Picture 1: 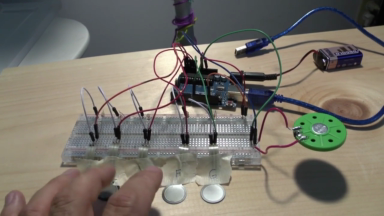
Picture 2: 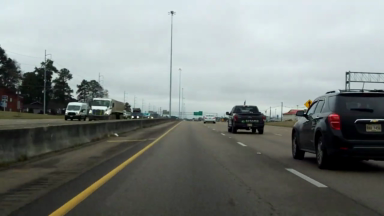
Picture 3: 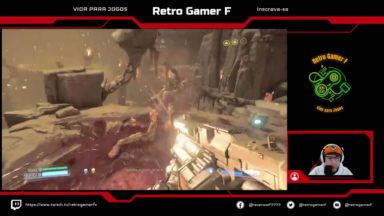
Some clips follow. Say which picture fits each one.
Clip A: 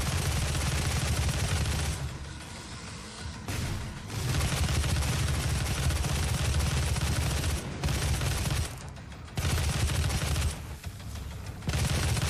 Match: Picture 3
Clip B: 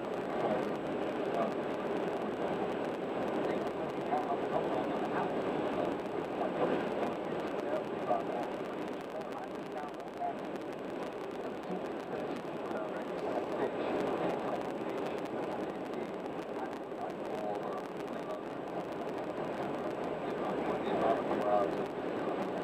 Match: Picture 2